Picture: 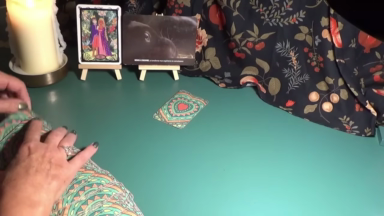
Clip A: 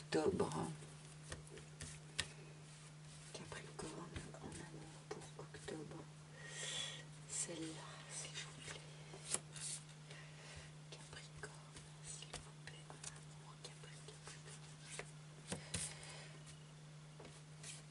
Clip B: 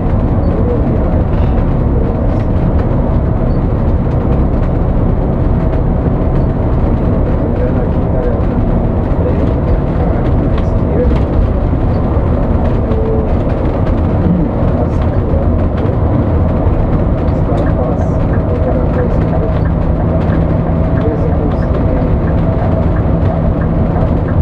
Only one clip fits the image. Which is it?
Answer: A